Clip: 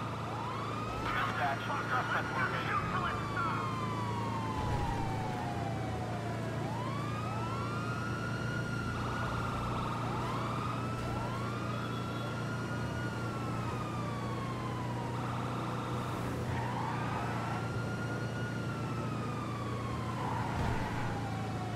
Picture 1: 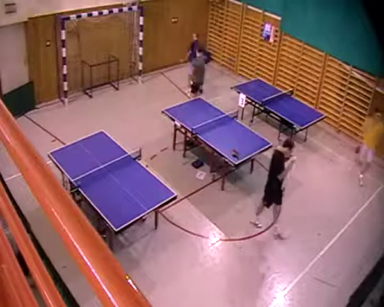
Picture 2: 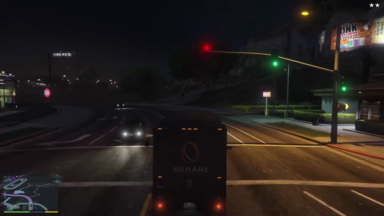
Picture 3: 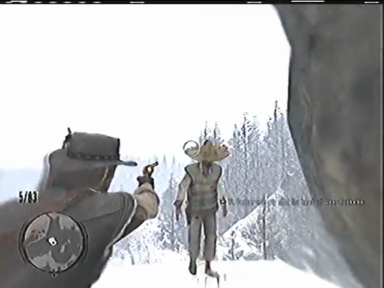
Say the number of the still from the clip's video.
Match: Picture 2